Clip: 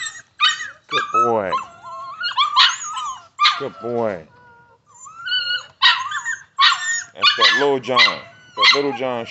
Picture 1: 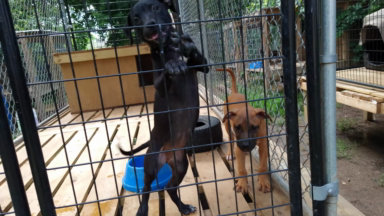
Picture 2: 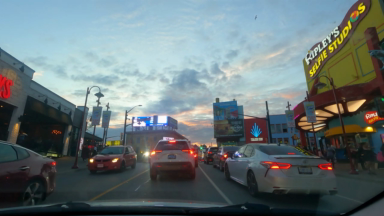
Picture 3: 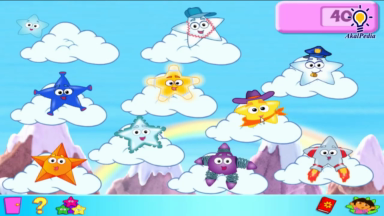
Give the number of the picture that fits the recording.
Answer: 1